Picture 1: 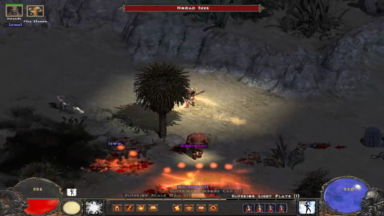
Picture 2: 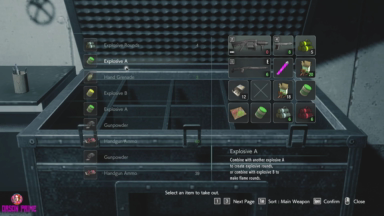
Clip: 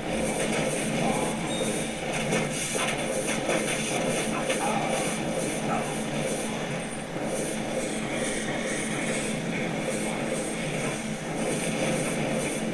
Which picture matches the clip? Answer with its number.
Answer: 1